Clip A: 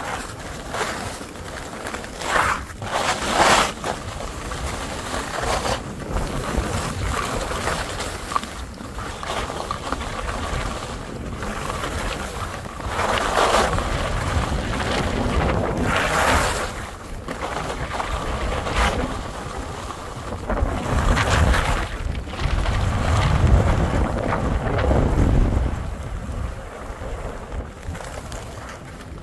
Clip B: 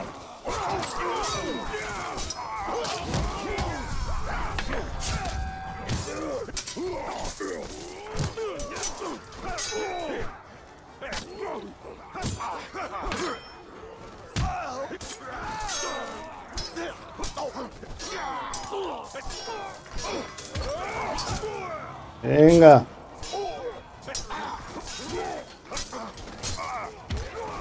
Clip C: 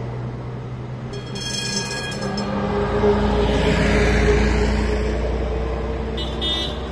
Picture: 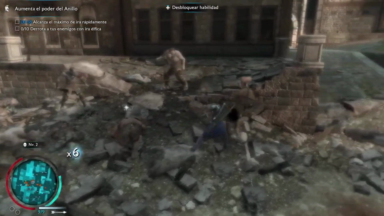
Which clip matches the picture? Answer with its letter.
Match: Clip B